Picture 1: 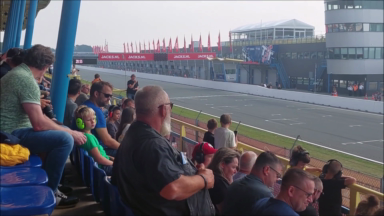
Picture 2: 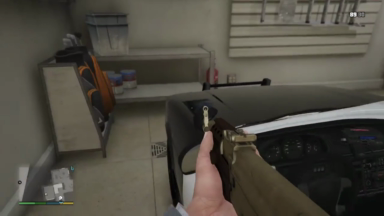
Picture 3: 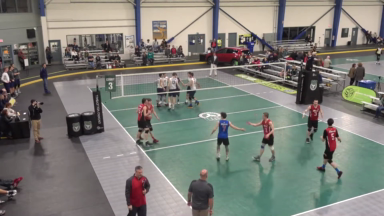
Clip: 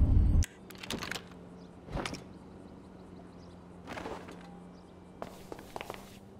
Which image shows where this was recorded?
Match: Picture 2